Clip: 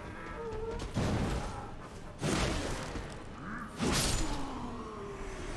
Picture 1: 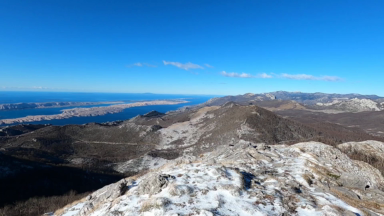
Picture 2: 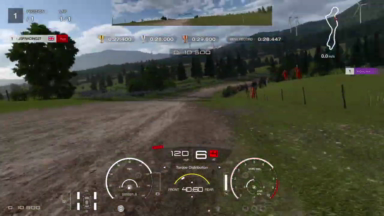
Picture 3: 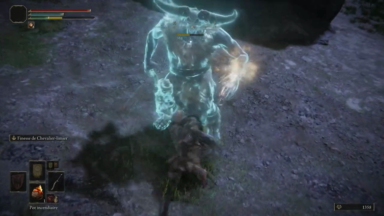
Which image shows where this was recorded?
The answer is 3